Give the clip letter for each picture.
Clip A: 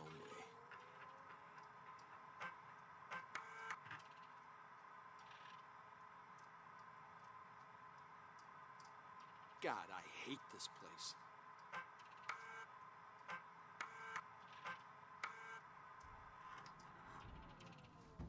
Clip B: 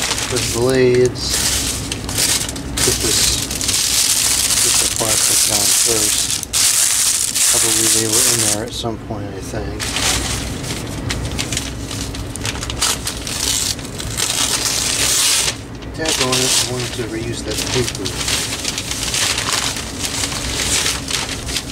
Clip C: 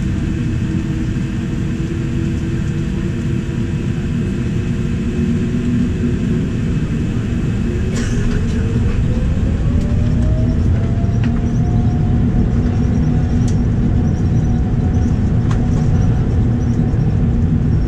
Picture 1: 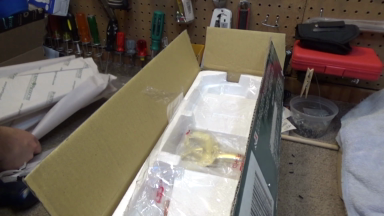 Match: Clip B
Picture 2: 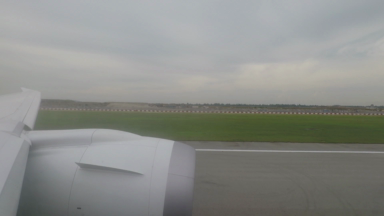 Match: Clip C